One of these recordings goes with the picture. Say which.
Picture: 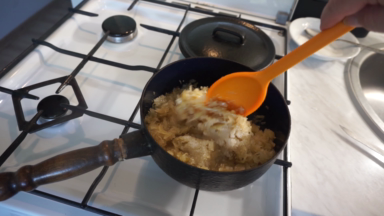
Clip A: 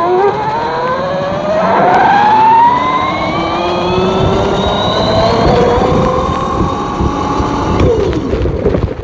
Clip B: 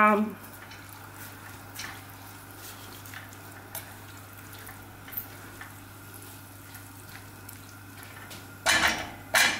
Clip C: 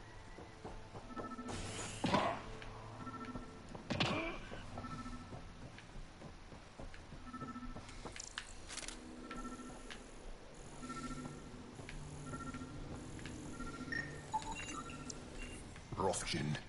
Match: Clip B